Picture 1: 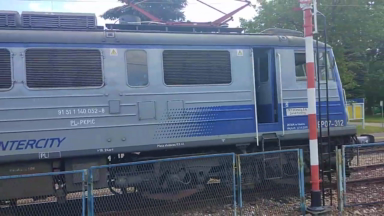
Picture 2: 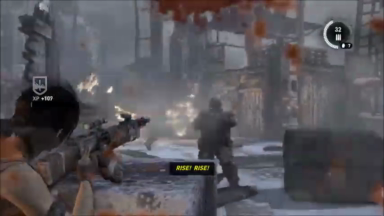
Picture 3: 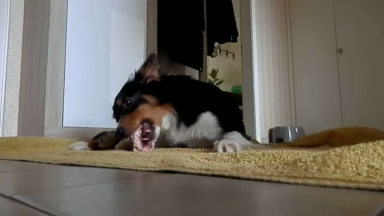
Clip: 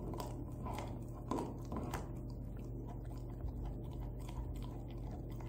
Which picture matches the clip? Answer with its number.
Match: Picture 3